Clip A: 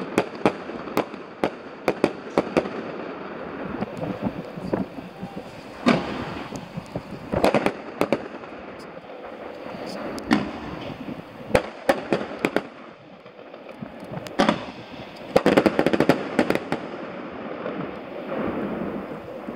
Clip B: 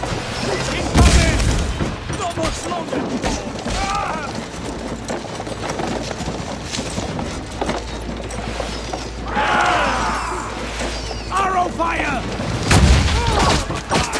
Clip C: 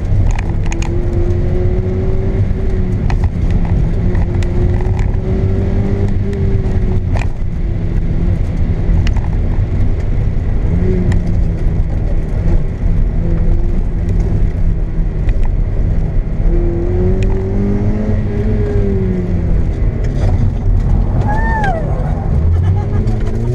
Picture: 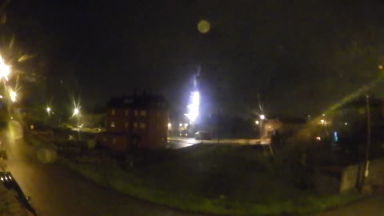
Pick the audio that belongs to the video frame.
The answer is A